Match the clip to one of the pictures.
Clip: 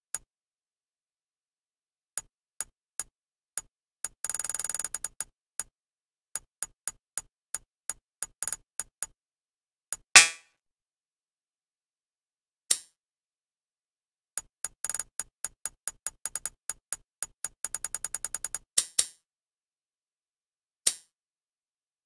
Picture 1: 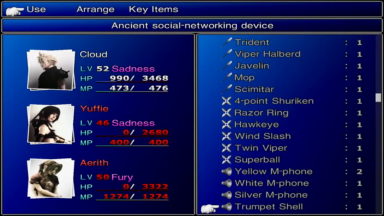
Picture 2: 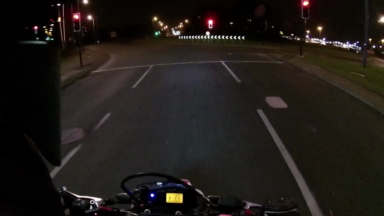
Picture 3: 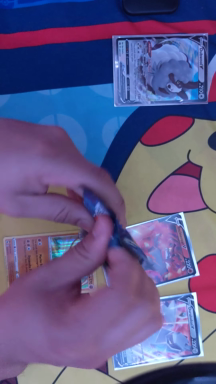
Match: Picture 1